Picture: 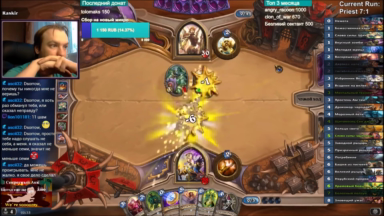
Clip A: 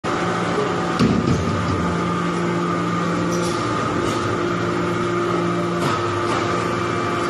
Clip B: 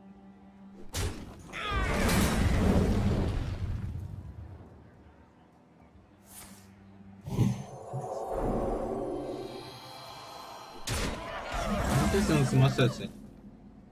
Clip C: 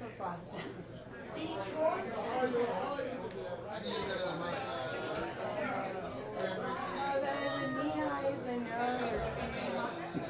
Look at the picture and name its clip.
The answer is B